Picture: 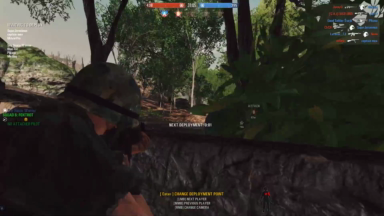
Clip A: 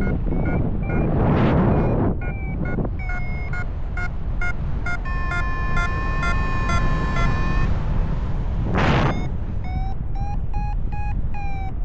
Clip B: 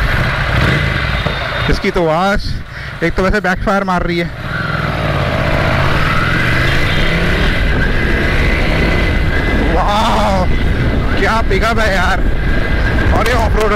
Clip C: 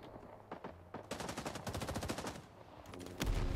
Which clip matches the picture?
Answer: C